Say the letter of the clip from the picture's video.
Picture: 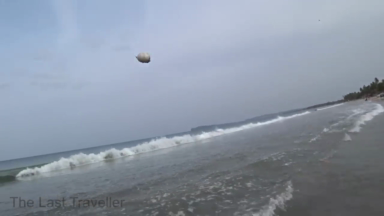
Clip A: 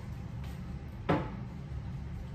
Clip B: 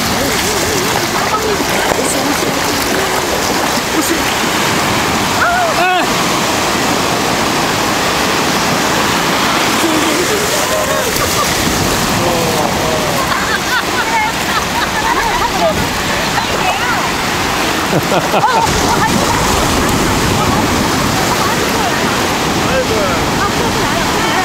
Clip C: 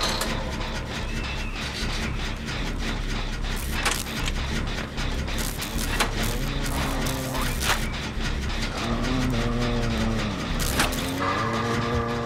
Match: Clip B